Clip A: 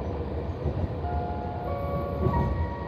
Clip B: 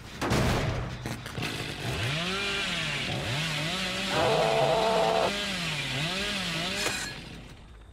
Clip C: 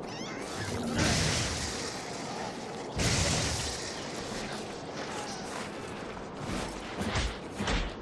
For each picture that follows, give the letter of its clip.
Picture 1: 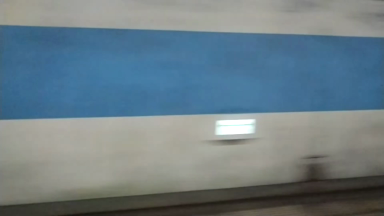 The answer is A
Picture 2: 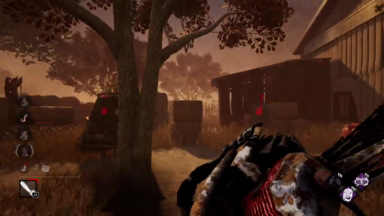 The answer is B